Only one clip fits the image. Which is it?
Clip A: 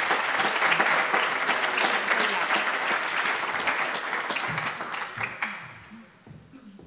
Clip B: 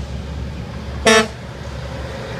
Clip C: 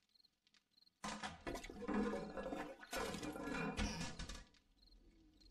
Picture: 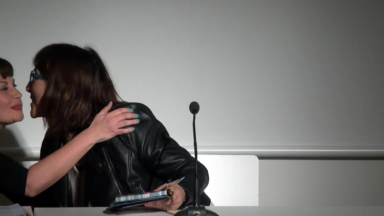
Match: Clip A